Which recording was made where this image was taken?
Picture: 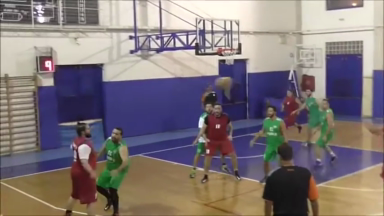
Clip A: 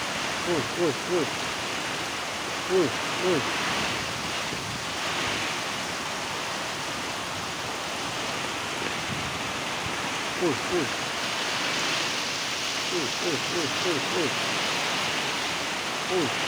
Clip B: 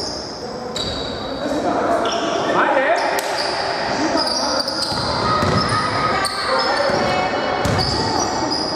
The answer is B